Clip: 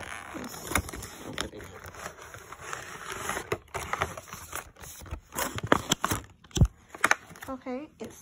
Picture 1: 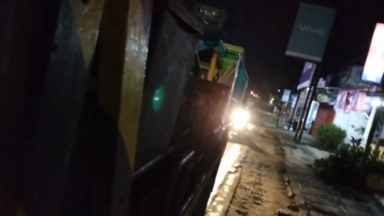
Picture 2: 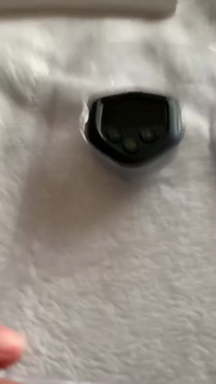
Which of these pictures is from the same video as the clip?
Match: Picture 2